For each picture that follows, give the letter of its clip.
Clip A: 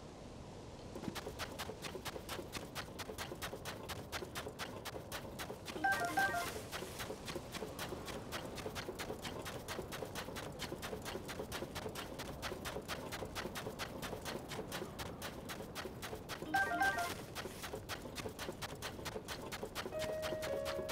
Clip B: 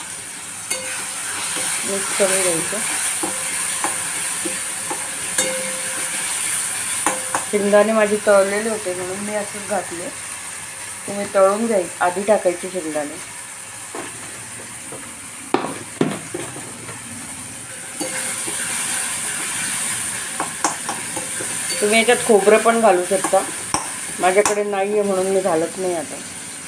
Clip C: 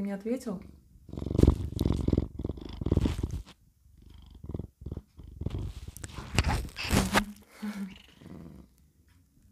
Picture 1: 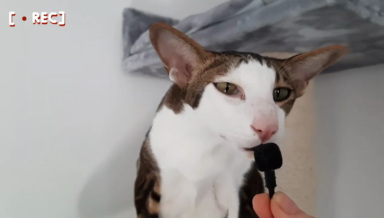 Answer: C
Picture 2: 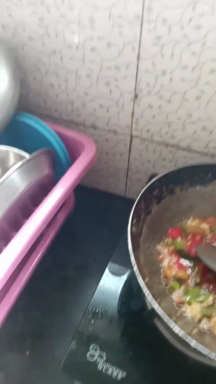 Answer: B